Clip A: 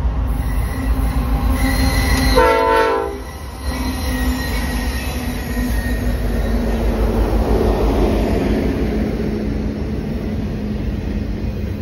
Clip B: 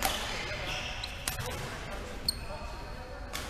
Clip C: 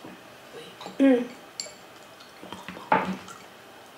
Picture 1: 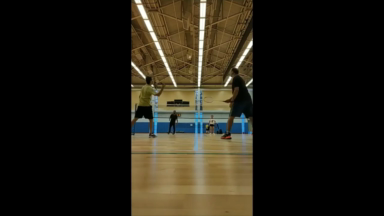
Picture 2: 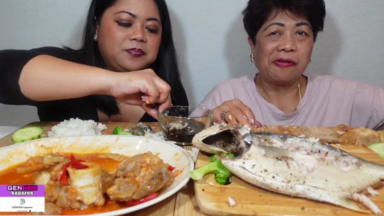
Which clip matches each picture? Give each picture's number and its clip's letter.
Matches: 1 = B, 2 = C